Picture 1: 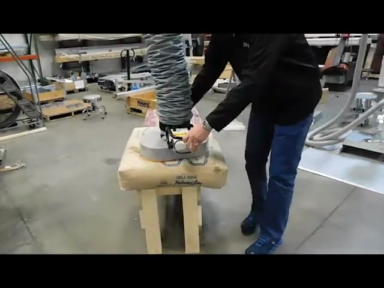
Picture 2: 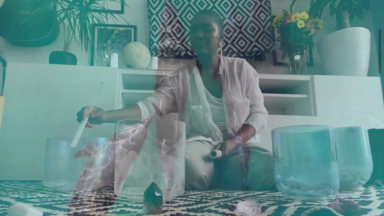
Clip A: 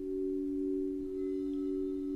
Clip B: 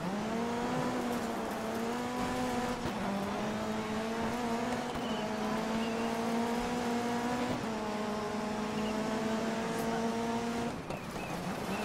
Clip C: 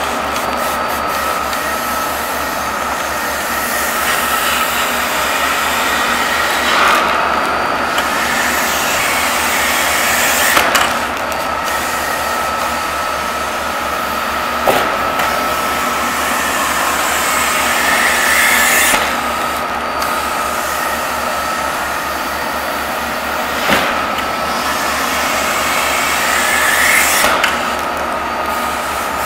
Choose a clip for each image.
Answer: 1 C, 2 A